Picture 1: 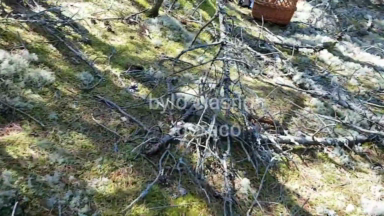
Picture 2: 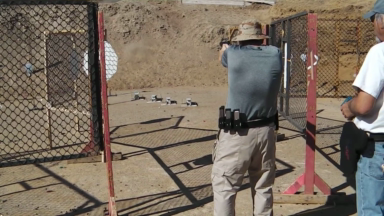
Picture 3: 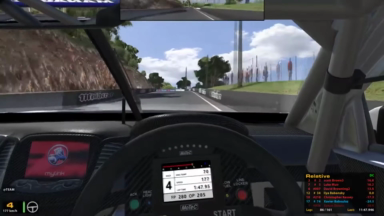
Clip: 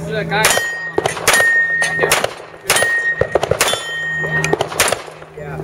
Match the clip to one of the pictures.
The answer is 2